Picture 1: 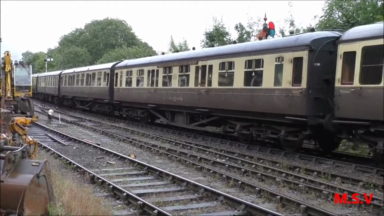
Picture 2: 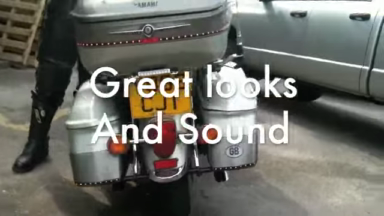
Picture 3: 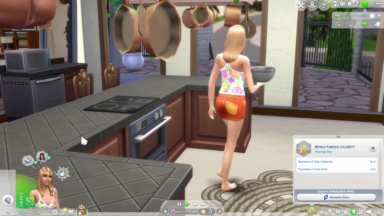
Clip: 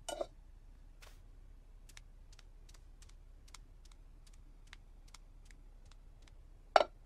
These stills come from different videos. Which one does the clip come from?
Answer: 3